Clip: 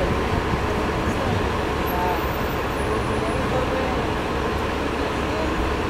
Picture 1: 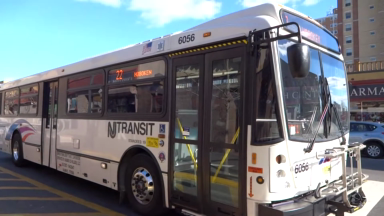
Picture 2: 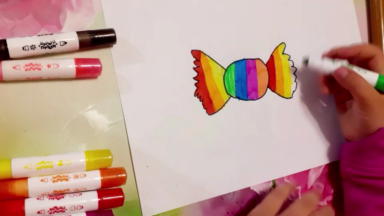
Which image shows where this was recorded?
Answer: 1